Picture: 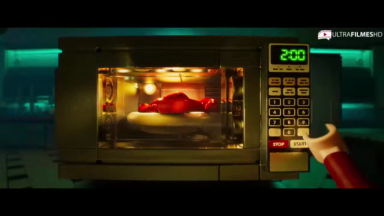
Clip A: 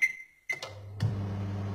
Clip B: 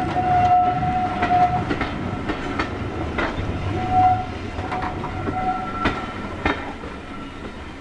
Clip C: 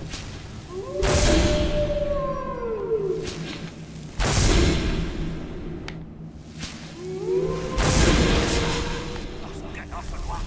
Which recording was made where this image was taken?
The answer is A